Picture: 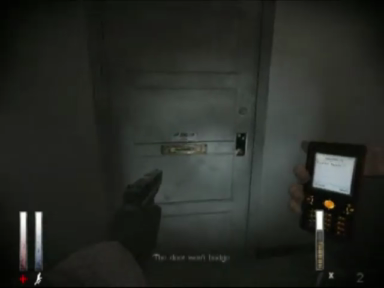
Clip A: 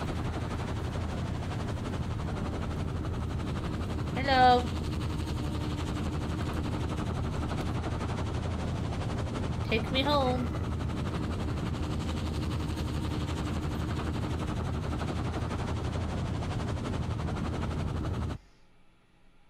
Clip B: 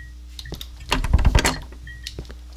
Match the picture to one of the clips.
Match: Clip B